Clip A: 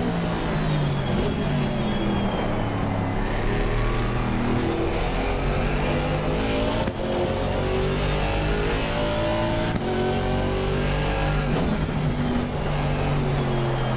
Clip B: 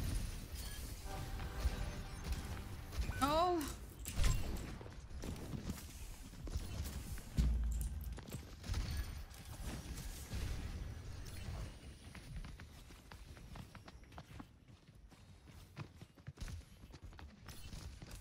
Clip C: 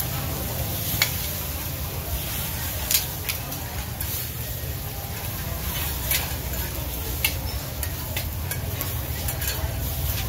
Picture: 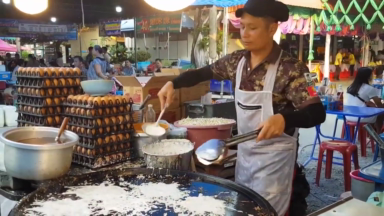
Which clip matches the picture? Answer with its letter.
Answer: C